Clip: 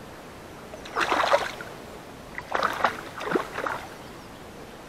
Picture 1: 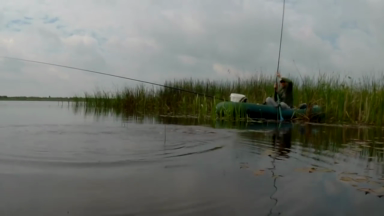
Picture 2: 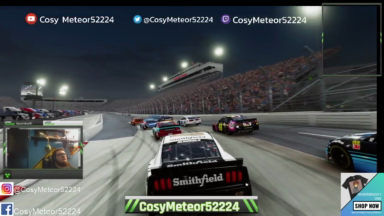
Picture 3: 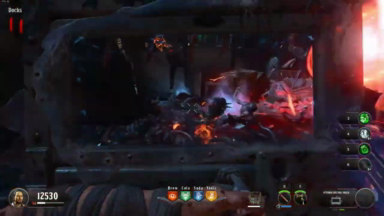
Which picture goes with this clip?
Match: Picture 1